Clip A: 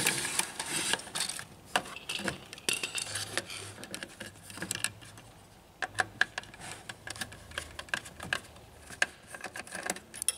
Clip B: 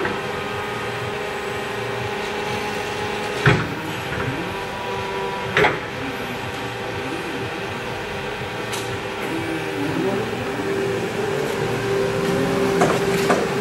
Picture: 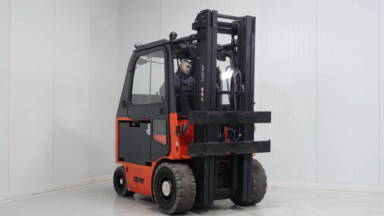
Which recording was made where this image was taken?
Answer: B